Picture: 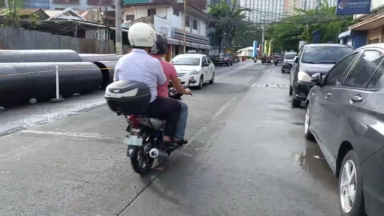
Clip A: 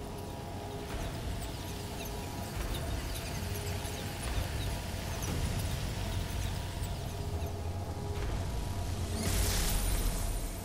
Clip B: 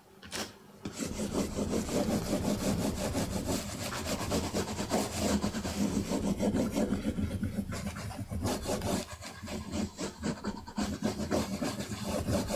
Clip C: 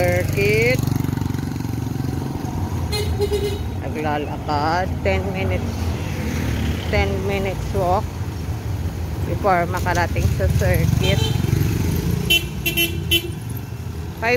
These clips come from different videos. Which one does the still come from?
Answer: C